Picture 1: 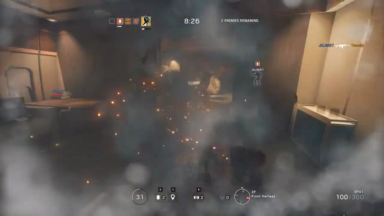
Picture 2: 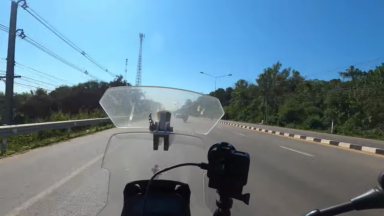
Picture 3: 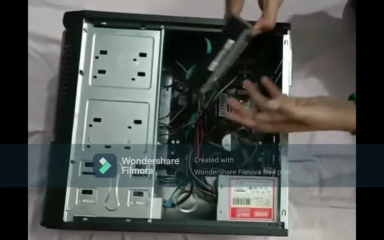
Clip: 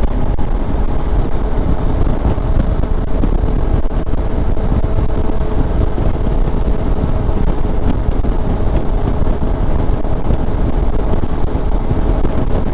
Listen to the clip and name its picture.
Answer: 2